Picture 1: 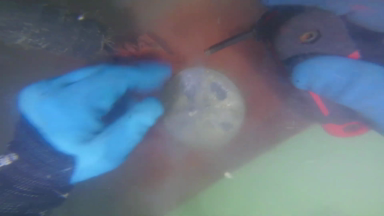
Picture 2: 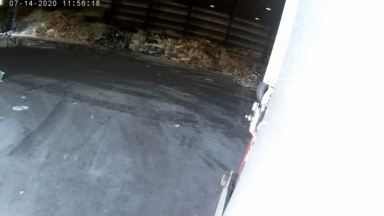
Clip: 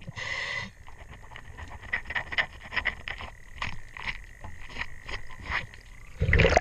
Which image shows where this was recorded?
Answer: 1